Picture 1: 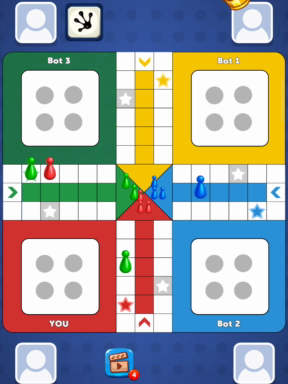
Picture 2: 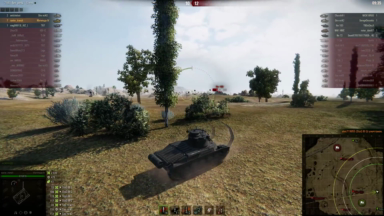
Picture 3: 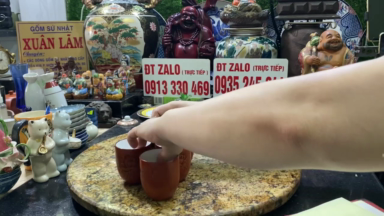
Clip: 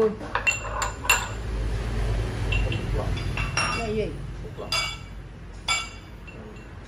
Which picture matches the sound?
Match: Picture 3